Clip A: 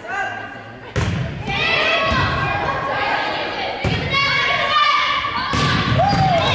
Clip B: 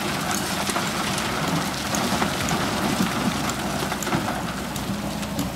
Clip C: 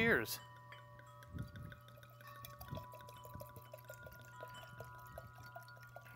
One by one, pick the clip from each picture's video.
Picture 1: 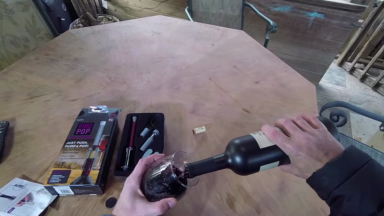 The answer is C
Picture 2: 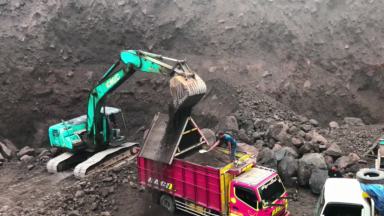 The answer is B